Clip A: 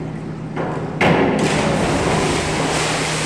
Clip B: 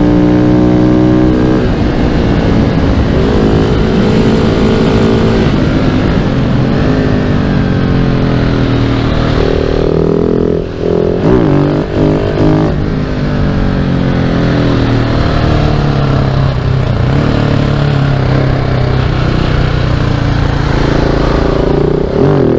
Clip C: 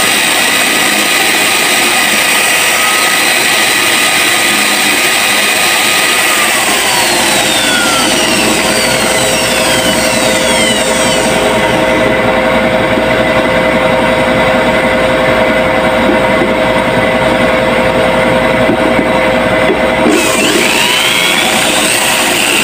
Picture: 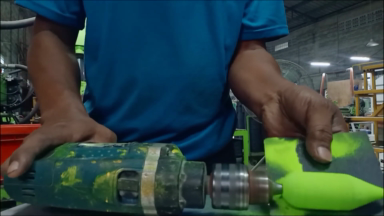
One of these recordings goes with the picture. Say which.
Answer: C